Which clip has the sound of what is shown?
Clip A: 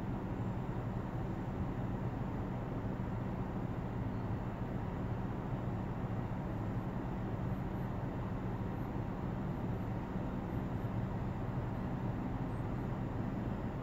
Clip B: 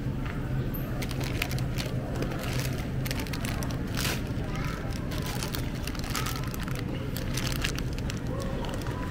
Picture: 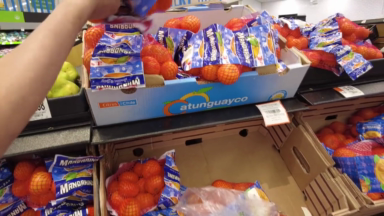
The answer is B